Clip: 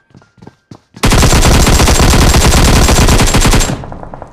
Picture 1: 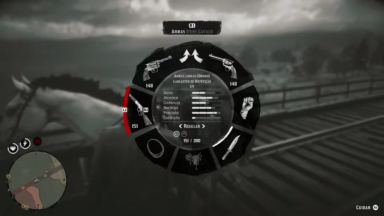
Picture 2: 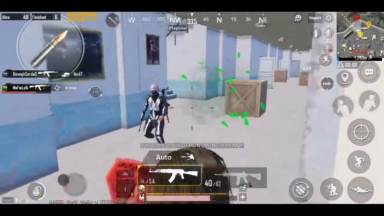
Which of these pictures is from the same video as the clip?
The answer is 2